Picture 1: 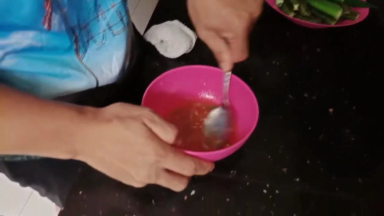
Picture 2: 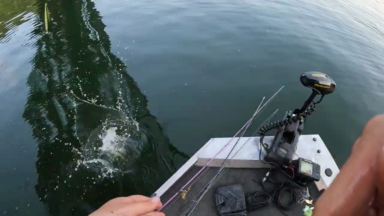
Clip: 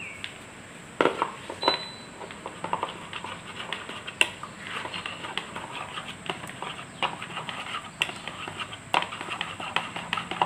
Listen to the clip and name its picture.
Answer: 1